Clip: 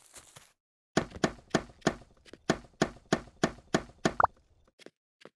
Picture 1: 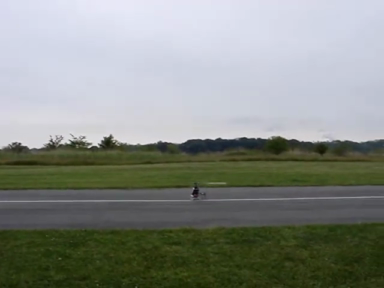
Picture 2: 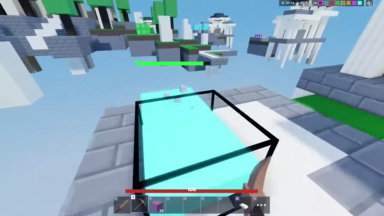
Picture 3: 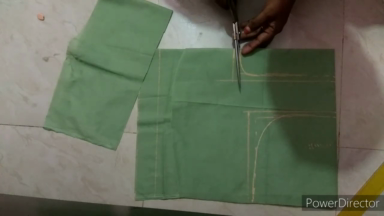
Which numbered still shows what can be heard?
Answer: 2